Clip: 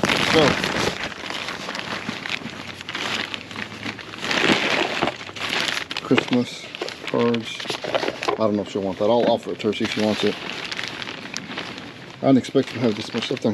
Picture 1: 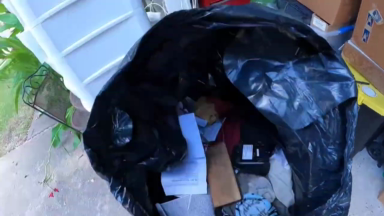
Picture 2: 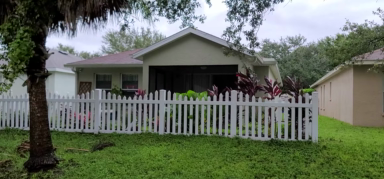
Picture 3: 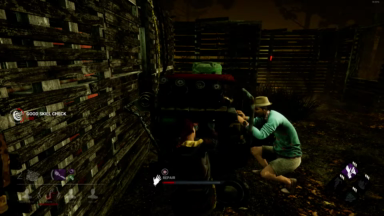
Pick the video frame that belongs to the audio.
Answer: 1